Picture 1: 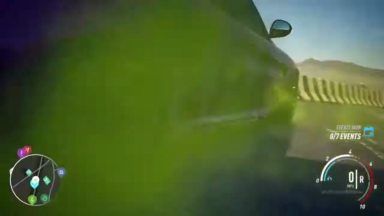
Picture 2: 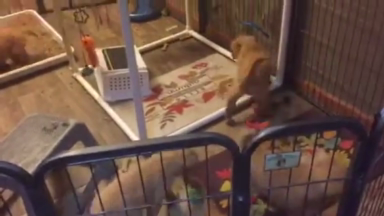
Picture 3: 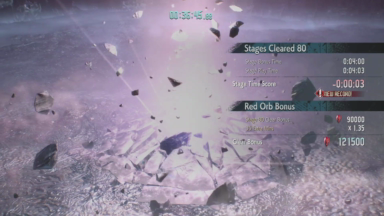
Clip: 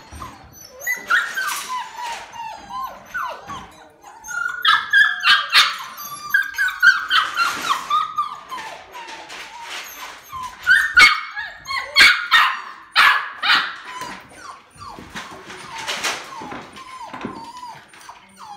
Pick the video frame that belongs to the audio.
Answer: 2